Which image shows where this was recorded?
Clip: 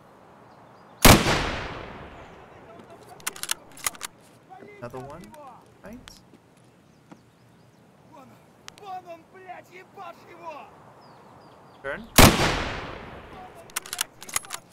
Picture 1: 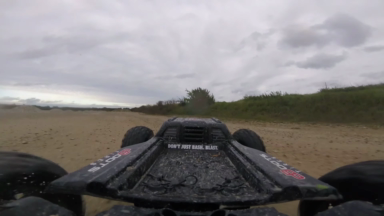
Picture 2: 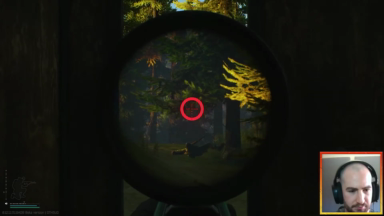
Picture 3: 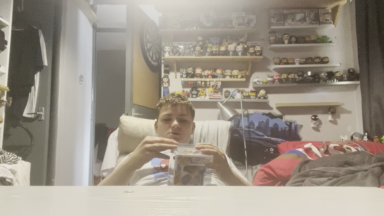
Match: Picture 2